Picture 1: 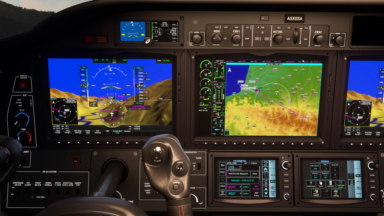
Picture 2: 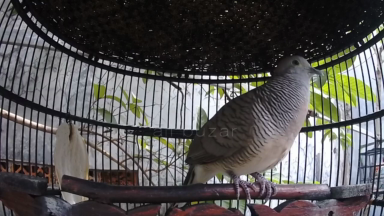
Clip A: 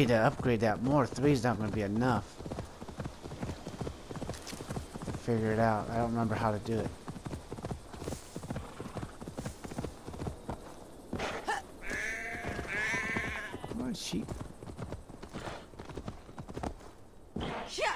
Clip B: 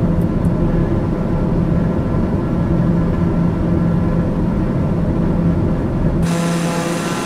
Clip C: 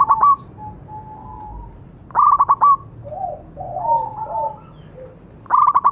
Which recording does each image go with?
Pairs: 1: B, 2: C